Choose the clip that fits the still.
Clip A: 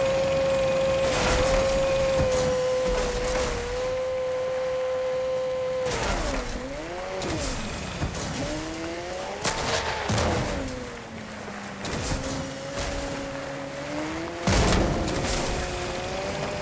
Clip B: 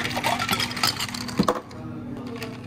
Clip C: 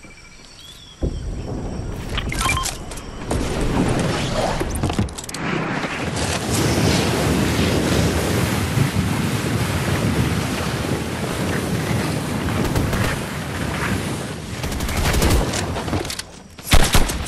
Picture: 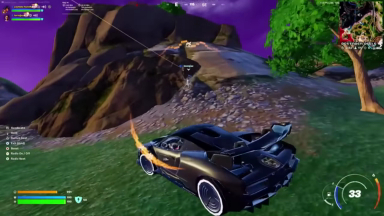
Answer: A